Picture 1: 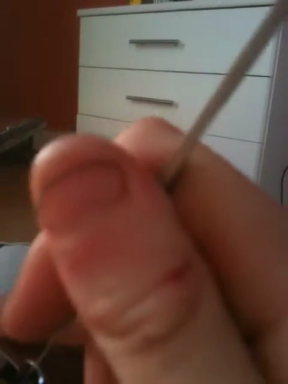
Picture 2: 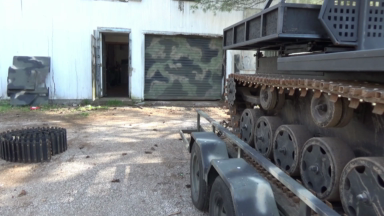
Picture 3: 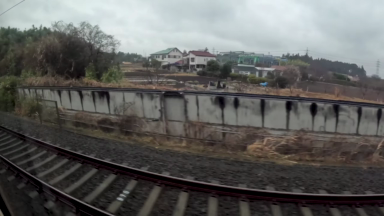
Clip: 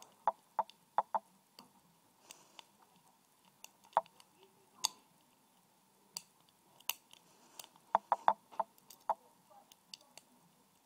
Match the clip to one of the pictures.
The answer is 1